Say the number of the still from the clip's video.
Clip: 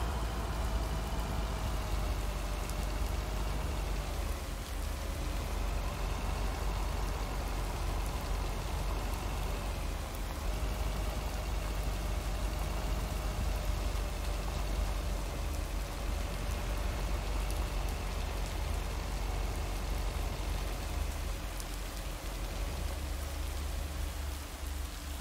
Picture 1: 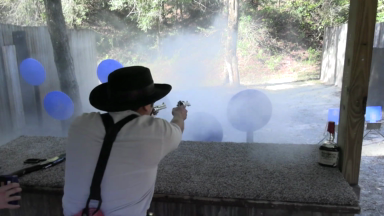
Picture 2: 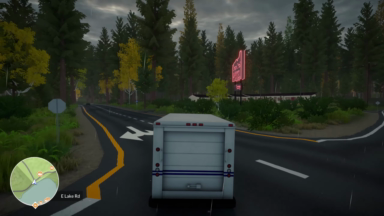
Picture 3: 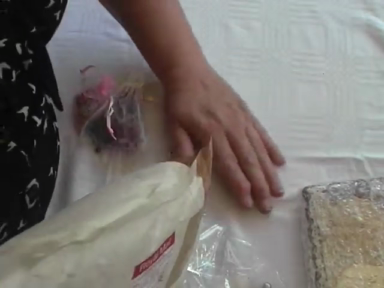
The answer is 2